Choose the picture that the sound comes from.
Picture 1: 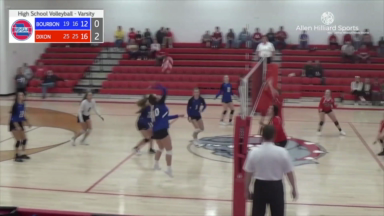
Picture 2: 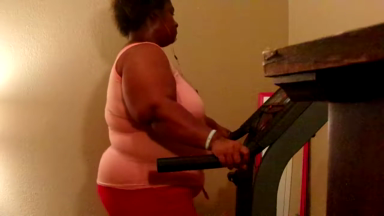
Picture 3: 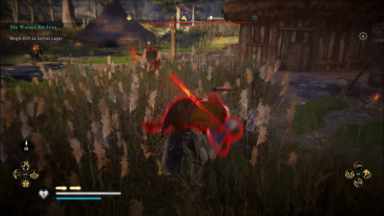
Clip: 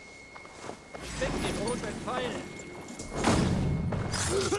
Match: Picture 3